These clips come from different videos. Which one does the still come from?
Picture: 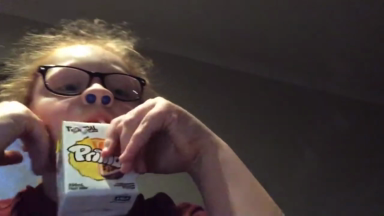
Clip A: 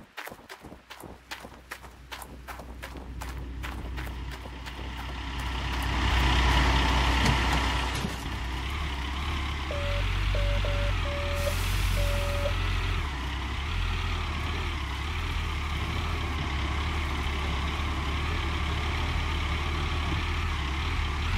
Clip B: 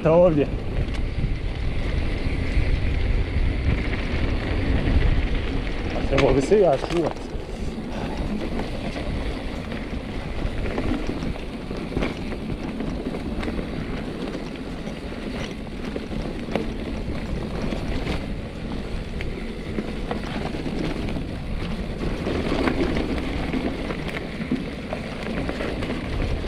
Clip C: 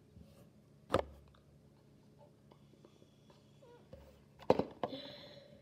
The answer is C